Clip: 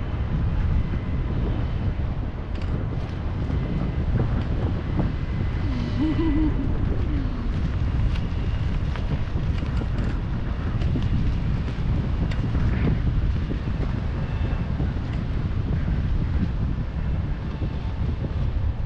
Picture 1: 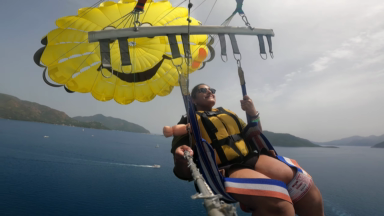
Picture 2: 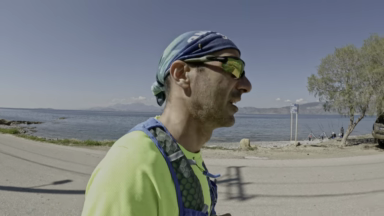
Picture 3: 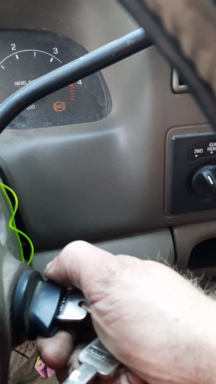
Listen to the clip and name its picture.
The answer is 1